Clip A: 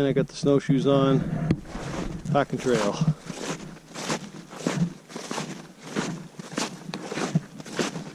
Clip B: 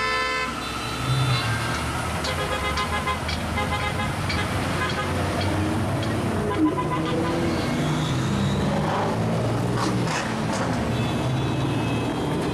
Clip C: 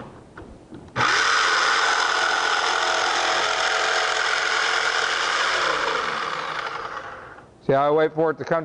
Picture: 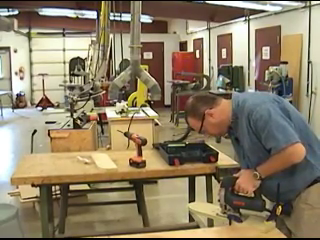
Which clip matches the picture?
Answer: C